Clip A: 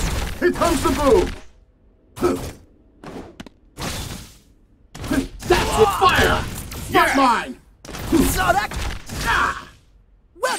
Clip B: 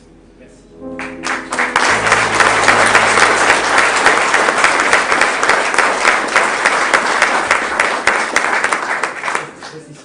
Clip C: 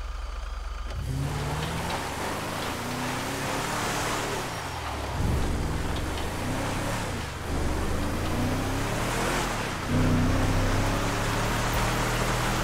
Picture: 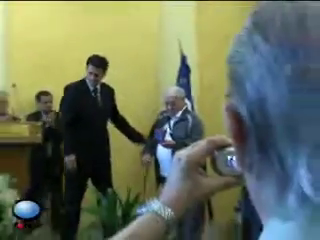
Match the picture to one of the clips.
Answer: B